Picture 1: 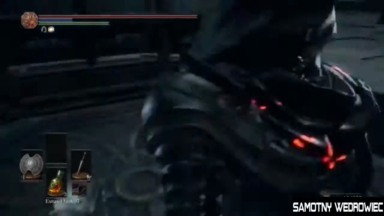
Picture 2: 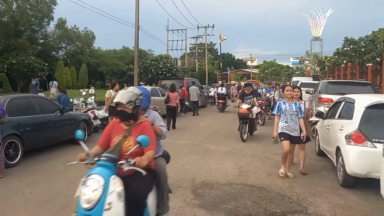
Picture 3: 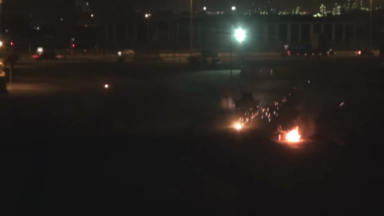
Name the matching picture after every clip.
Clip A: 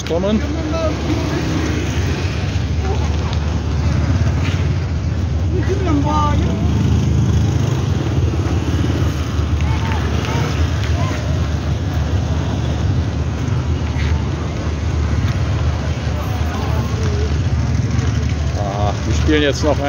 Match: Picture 2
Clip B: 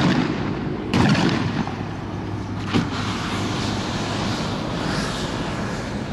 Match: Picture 3